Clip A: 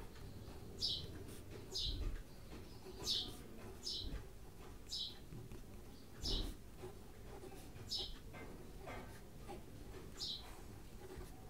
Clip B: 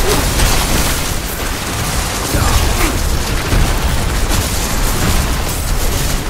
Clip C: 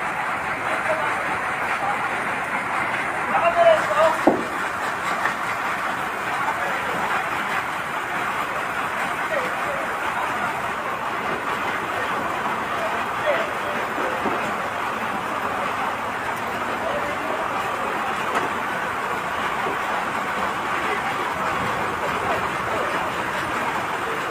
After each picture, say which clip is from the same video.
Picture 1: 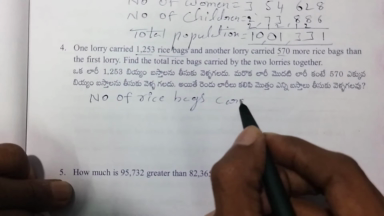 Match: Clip A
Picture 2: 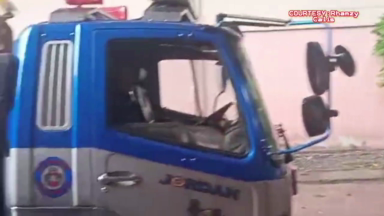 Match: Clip C